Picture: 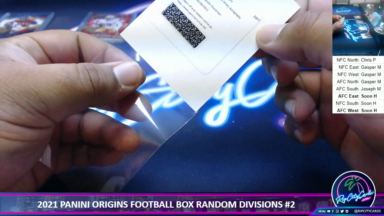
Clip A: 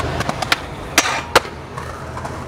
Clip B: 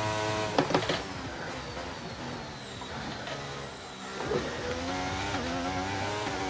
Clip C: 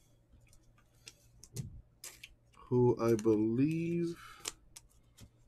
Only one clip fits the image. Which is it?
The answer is C